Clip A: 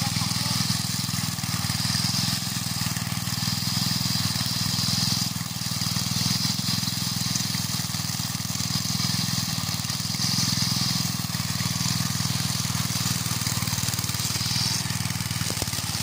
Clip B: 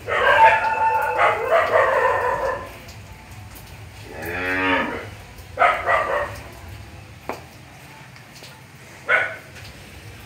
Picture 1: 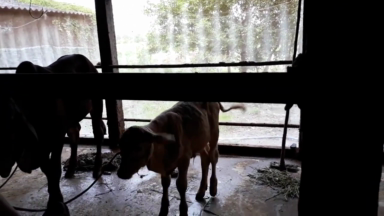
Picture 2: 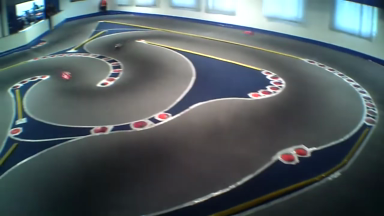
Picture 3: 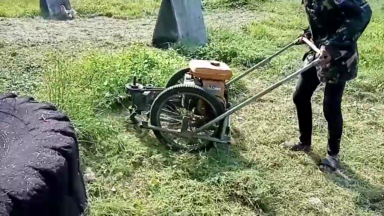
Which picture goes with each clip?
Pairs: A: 3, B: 1